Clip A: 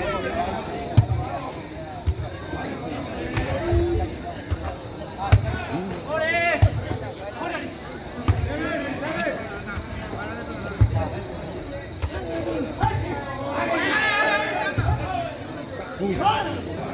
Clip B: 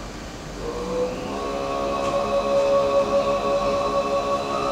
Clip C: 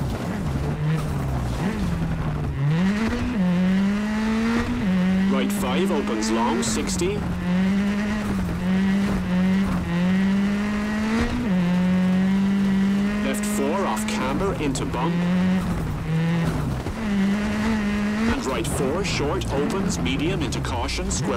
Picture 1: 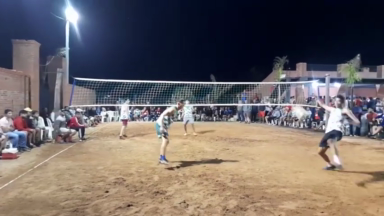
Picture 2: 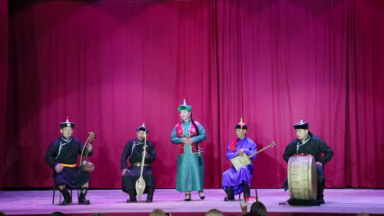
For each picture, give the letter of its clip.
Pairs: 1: A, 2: B